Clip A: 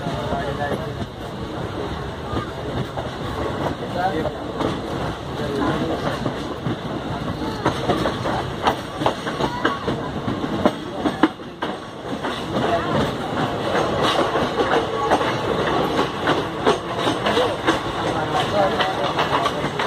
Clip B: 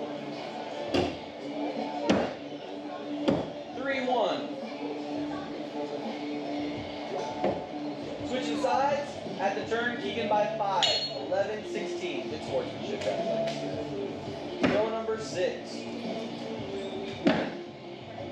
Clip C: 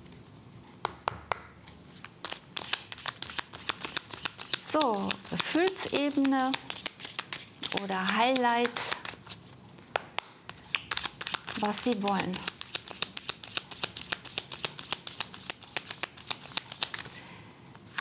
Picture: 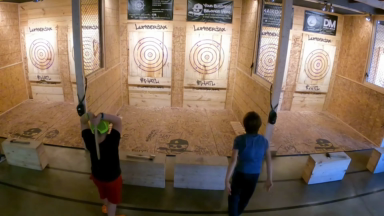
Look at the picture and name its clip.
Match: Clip B